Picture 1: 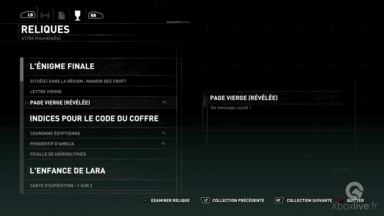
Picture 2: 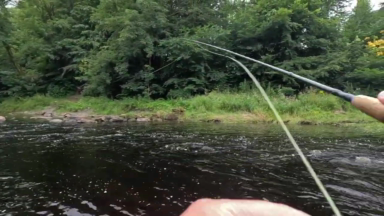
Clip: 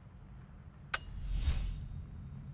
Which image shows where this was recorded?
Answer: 1